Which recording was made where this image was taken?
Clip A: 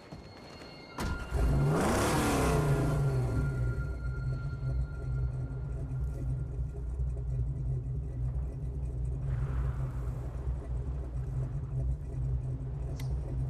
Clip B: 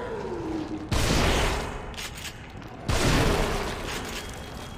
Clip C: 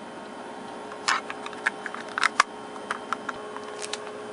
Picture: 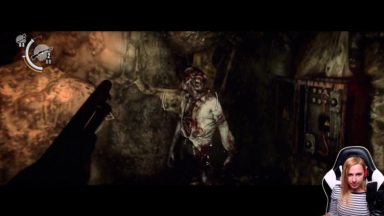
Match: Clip B